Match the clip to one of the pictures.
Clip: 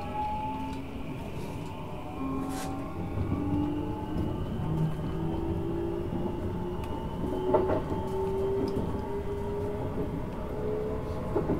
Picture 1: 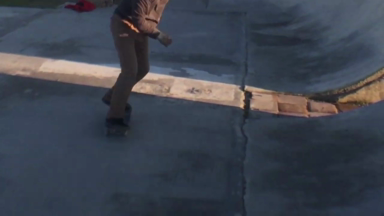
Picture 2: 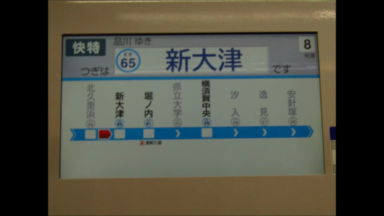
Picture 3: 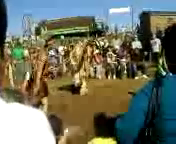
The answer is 2